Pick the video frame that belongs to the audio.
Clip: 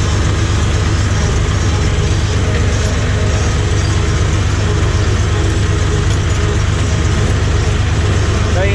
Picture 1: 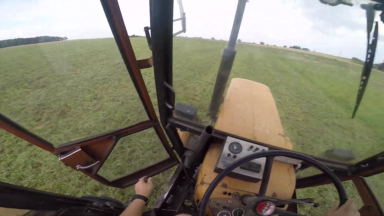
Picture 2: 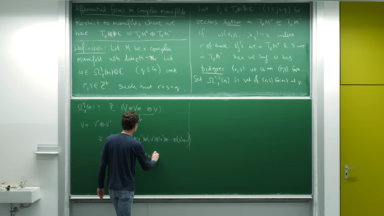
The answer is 1